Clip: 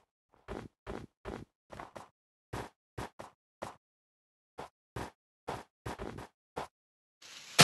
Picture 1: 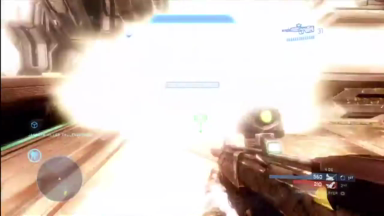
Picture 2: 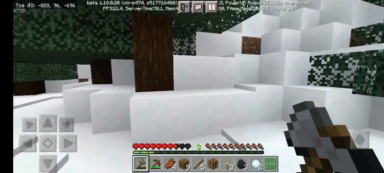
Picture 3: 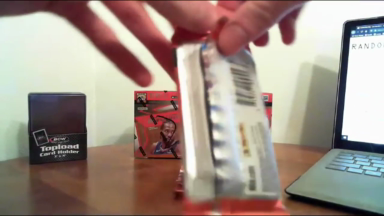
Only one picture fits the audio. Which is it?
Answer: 2